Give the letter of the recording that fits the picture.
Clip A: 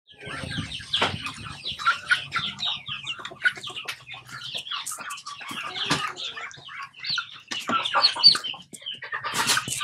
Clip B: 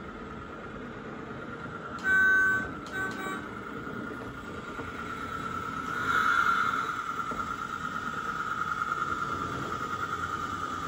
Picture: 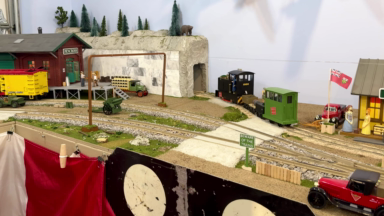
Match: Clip B